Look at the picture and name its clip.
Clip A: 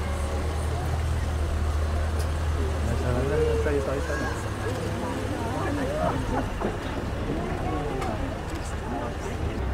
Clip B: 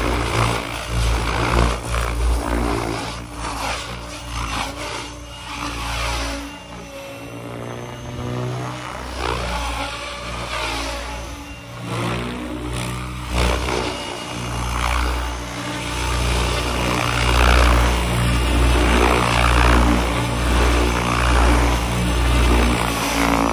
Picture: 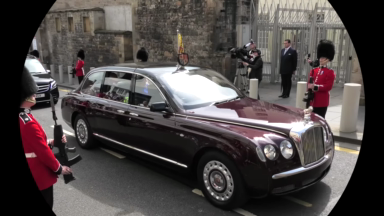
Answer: A